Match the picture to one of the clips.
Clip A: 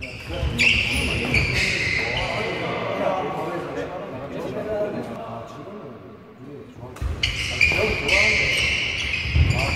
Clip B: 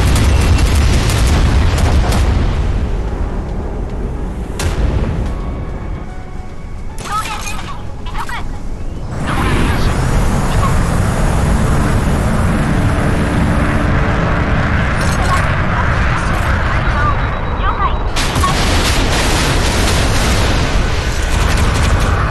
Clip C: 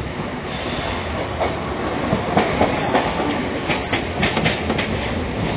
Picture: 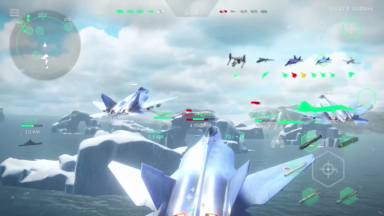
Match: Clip B